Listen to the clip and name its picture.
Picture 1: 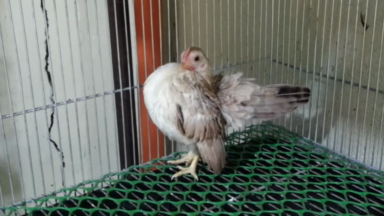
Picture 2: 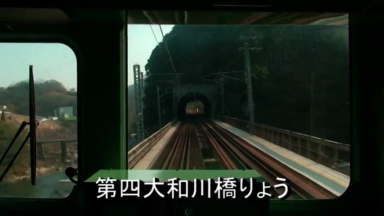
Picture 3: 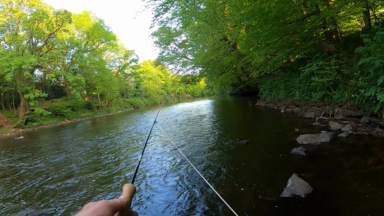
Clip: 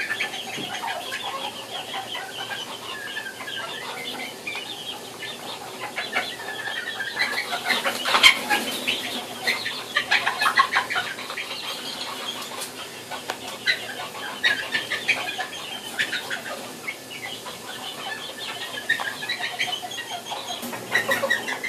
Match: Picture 1